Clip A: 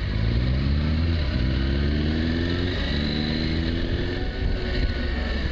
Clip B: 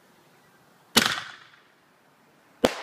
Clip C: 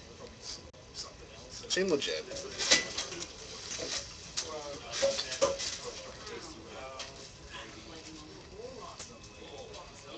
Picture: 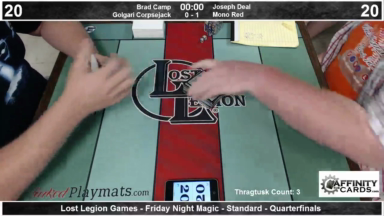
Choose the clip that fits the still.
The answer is C